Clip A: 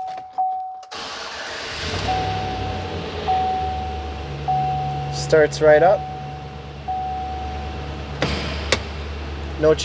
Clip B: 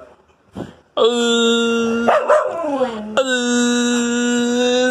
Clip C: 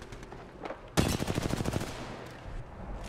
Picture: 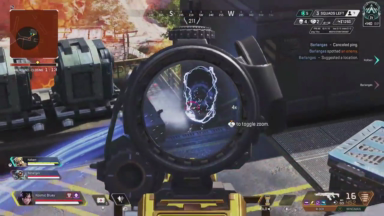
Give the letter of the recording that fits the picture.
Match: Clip C